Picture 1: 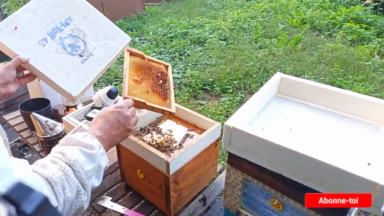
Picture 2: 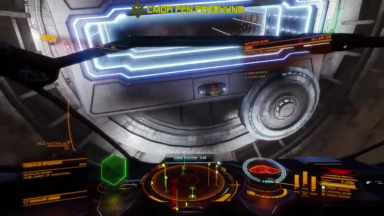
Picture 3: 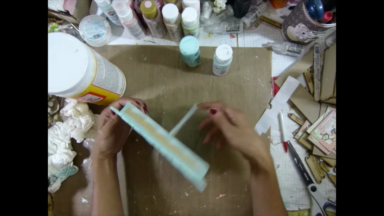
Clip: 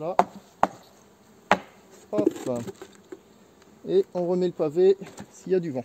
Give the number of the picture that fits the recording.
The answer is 1